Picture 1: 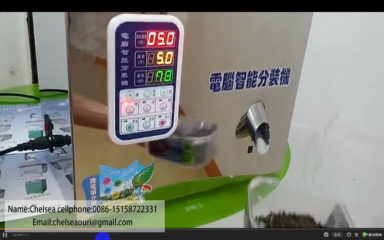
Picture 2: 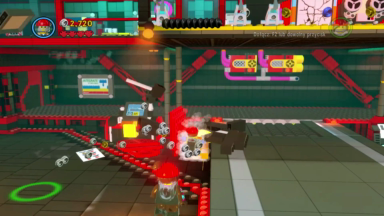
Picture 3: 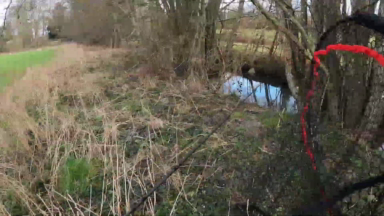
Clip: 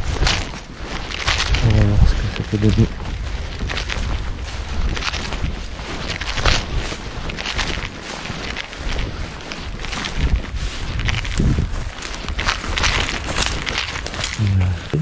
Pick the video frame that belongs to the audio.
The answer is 3